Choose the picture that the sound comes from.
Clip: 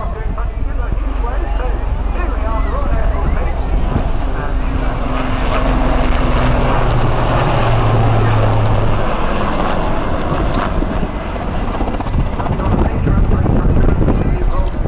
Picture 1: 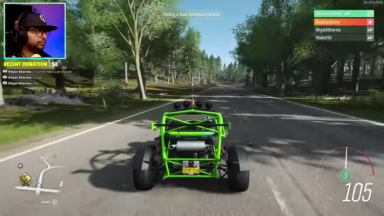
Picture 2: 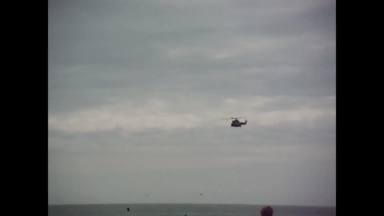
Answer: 2